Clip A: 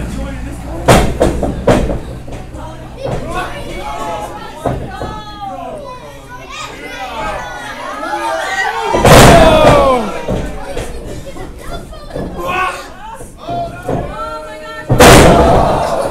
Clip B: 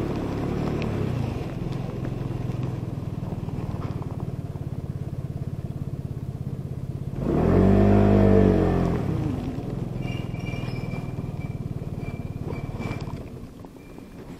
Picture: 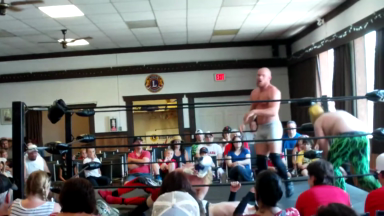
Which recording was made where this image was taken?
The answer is A